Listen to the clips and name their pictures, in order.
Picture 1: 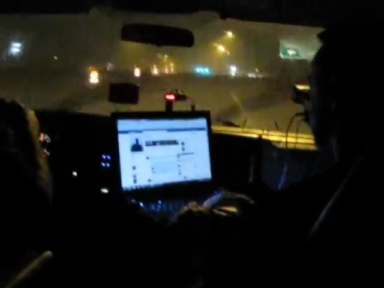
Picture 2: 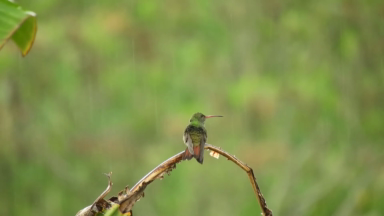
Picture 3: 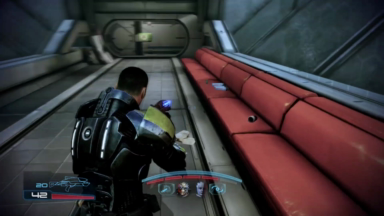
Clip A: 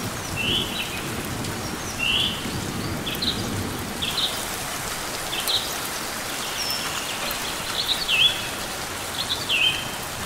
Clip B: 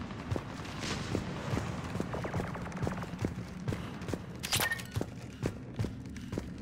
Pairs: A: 2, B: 3